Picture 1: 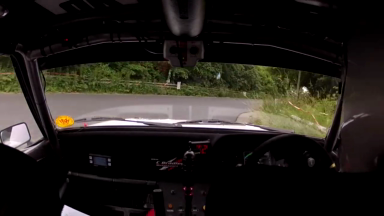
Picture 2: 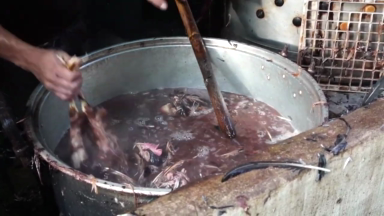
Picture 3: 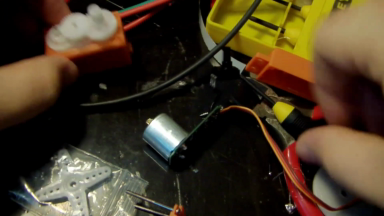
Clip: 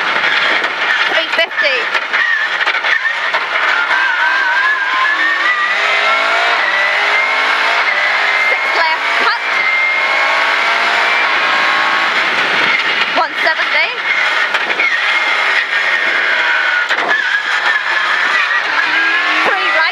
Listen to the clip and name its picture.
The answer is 1